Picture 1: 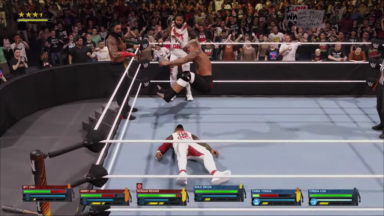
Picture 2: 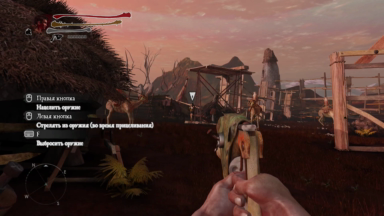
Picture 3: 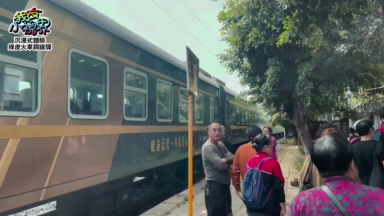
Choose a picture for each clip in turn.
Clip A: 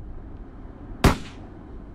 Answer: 2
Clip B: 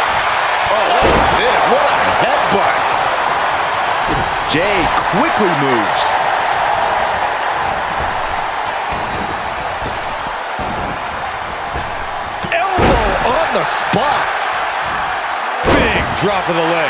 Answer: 1